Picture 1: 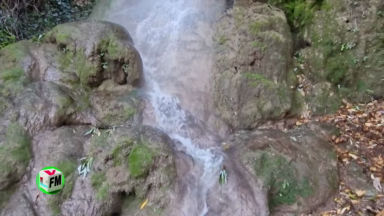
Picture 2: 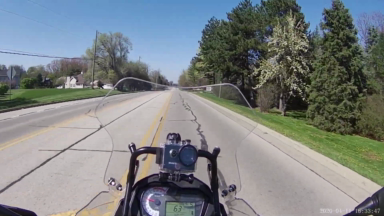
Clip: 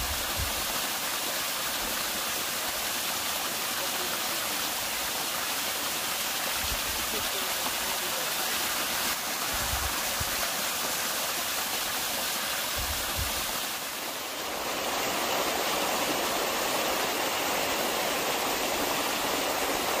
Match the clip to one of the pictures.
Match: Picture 1